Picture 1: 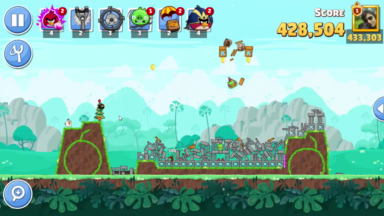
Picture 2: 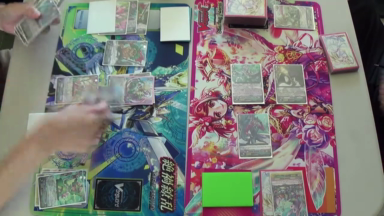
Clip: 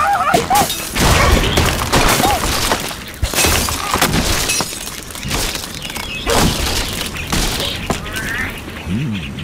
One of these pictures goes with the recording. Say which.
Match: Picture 1